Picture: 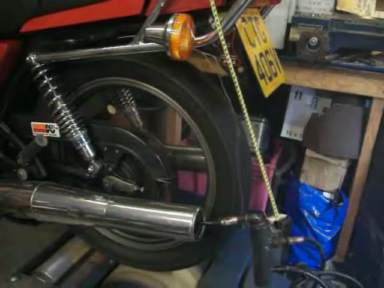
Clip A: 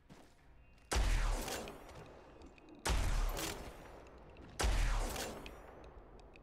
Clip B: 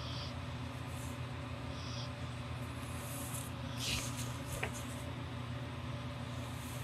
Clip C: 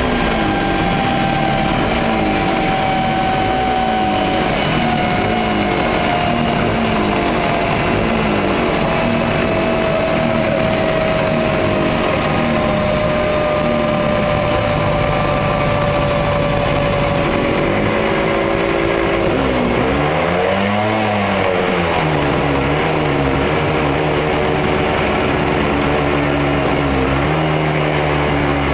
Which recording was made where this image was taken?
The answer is C